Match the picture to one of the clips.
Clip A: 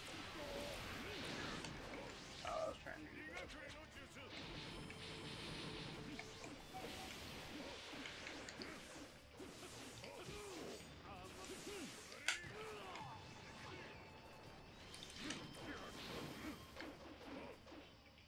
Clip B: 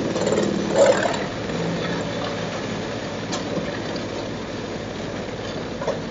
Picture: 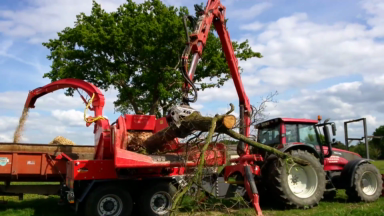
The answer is B